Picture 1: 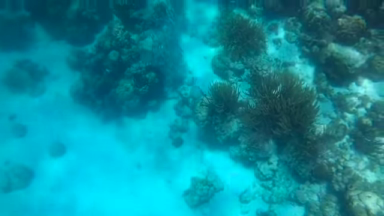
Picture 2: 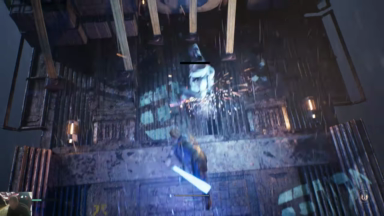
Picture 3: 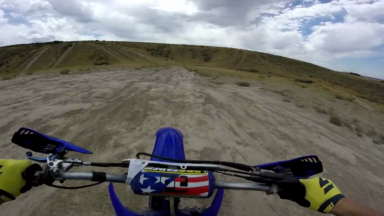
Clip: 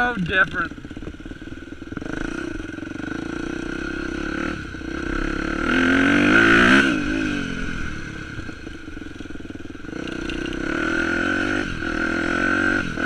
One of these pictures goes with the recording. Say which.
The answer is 3